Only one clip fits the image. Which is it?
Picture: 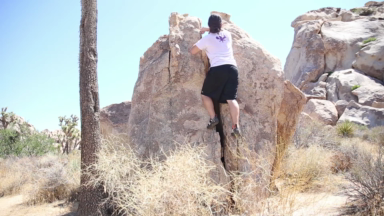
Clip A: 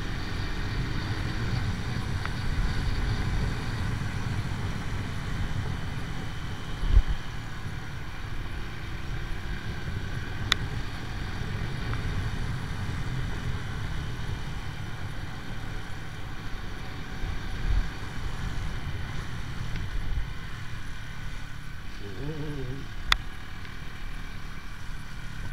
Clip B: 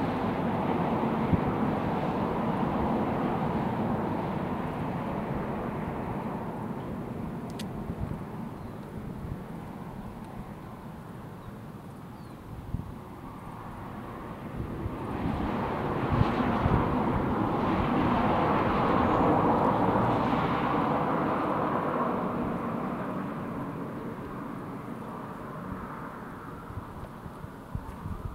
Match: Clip B